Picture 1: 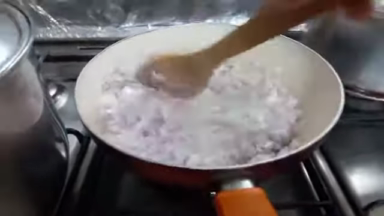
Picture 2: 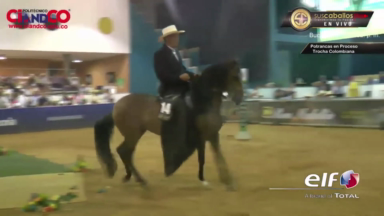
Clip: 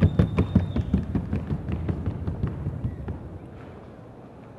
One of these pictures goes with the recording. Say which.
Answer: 2